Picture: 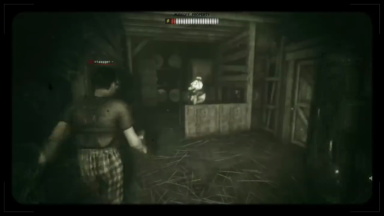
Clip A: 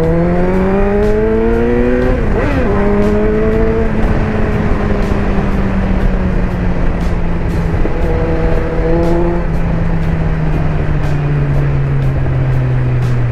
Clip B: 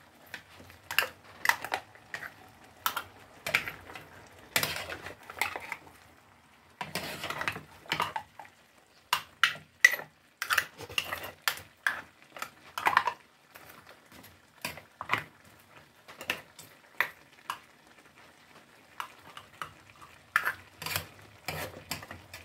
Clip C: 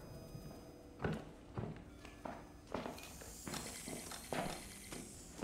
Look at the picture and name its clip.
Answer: C